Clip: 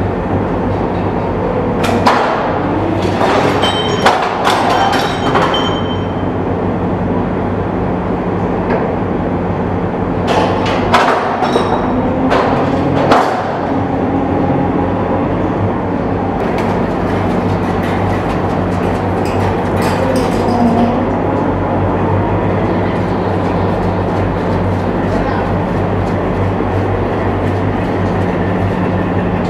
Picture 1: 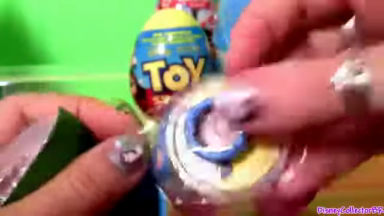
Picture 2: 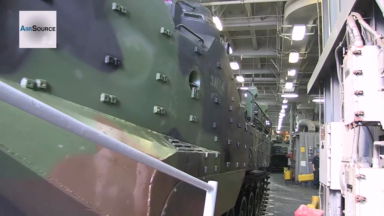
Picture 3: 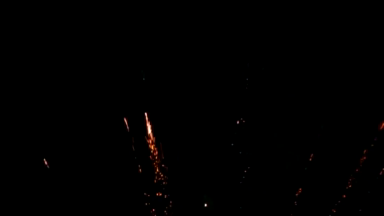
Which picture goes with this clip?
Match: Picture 2